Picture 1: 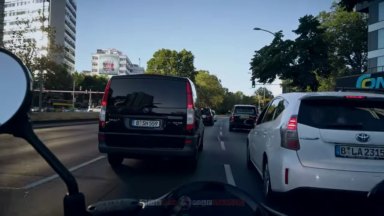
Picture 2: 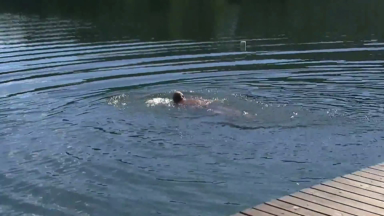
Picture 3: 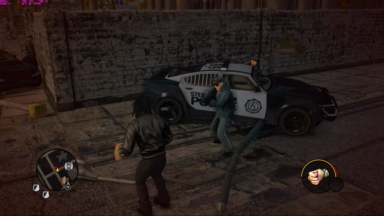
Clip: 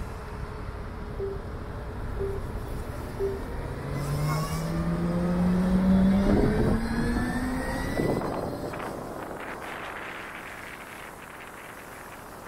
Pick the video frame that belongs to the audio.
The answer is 1